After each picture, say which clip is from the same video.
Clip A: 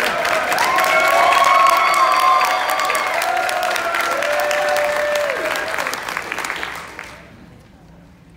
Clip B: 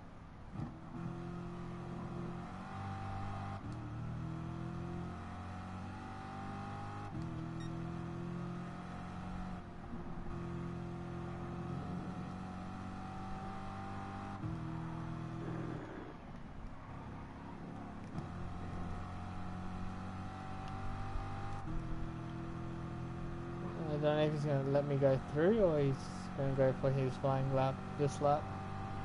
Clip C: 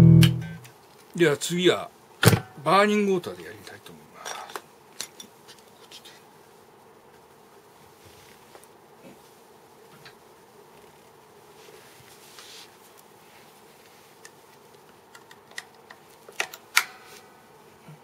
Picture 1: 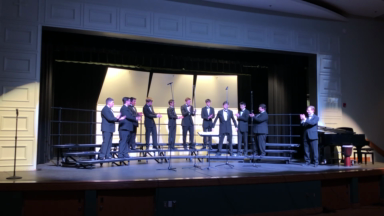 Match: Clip A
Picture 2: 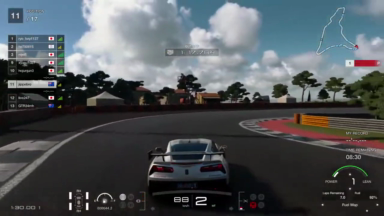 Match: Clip B